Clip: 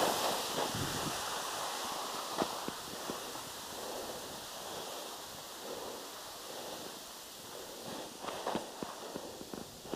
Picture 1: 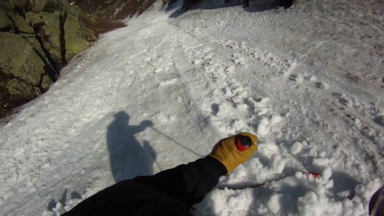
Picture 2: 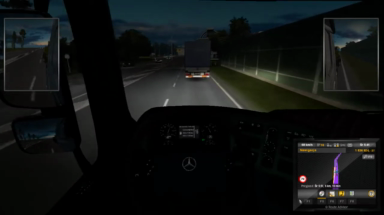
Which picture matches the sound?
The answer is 1